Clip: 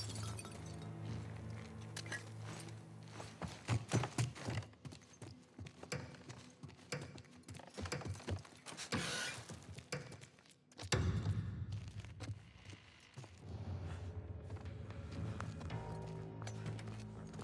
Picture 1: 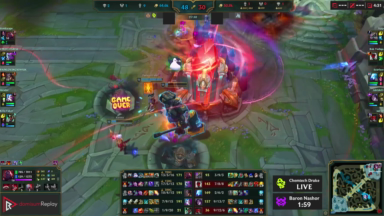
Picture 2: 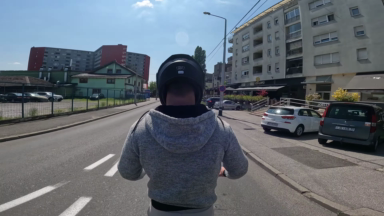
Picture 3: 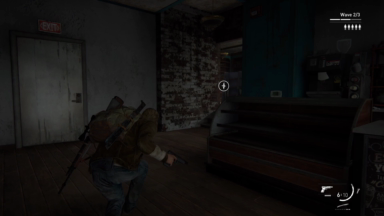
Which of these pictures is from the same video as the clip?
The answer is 3